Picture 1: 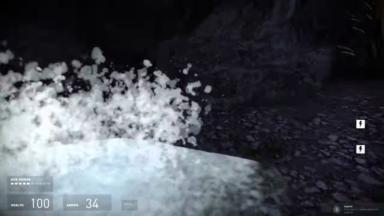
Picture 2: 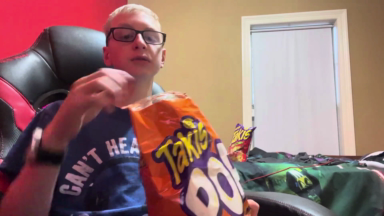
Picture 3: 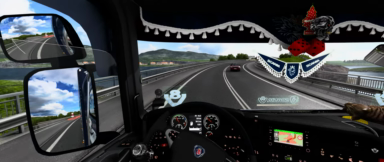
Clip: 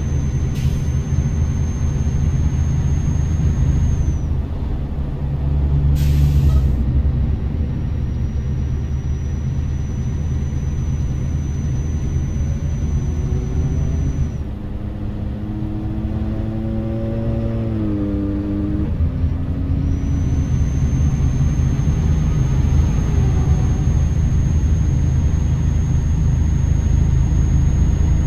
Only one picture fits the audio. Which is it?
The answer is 3